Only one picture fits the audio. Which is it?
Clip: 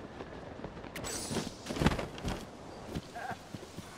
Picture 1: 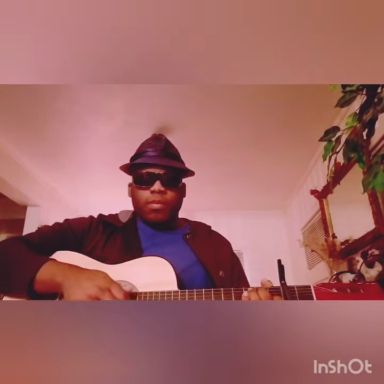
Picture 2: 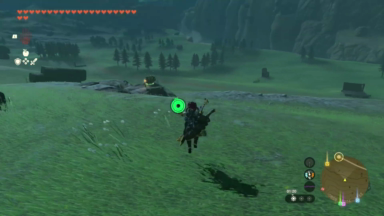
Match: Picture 2